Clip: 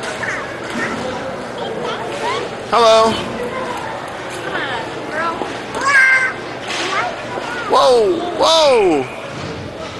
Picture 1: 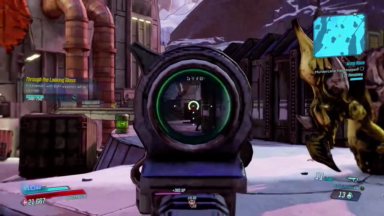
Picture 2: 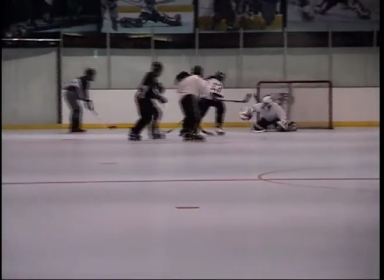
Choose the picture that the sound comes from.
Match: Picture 2